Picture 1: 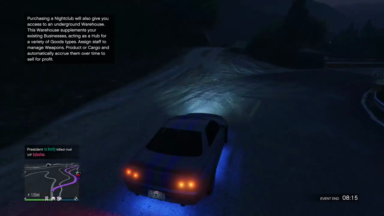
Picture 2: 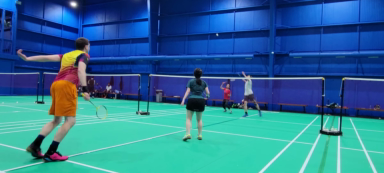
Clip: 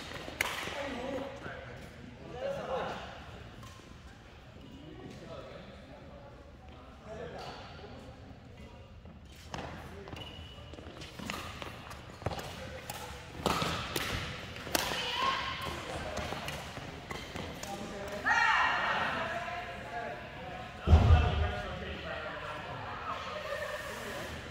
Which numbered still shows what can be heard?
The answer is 2